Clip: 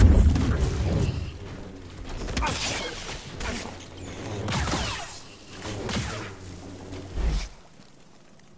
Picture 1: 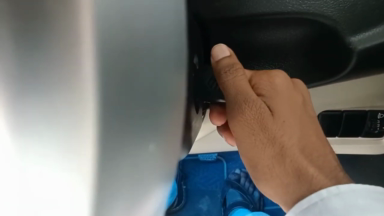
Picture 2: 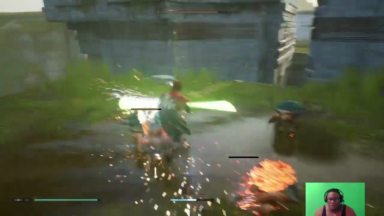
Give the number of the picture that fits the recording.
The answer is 2